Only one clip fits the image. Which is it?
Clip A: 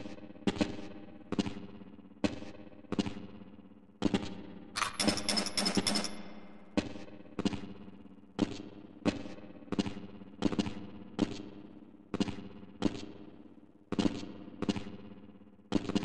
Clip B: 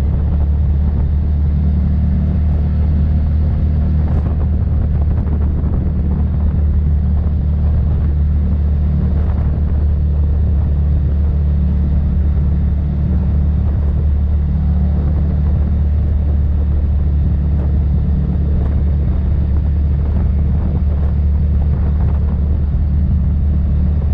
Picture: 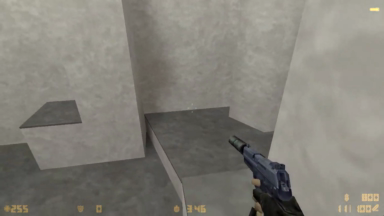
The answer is A